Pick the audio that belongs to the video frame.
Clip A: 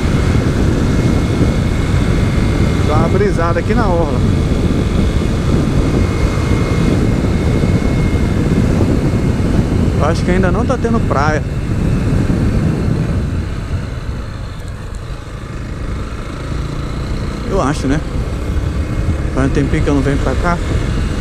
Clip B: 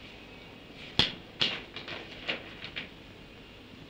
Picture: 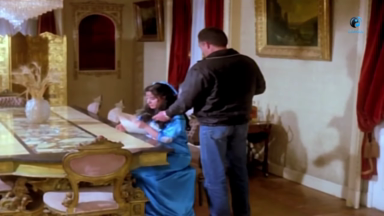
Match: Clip B